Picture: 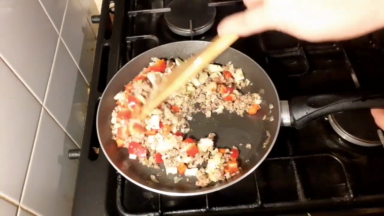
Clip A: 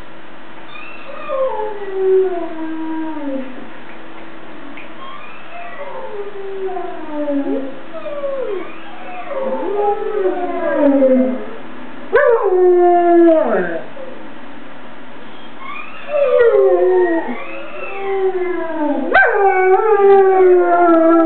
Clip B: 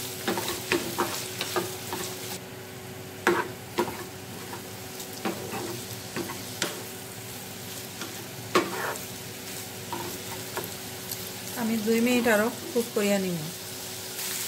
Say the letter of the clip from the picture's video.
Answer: B